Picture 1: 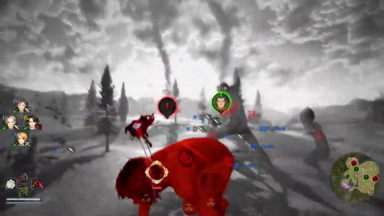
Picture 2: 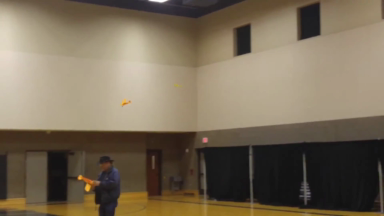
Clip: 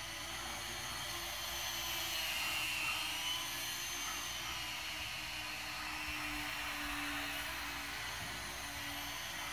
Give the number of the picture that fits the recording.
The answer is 2